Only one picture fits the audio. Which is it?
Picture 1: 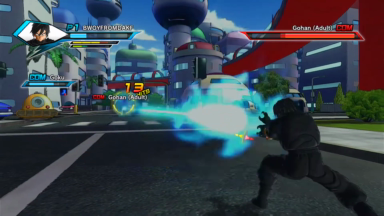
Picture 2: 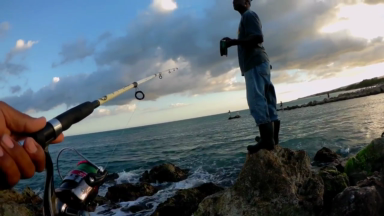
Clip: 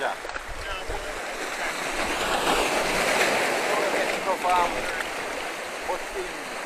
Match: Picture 2